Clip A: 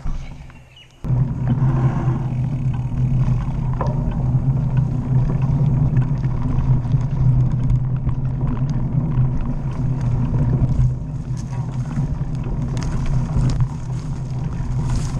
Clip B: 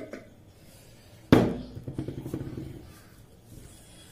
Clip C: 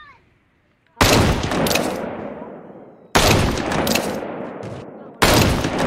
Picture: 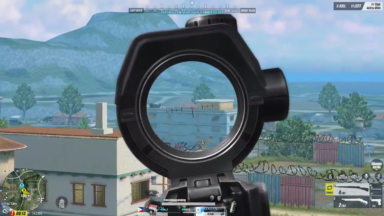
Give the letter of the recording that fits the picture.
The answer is C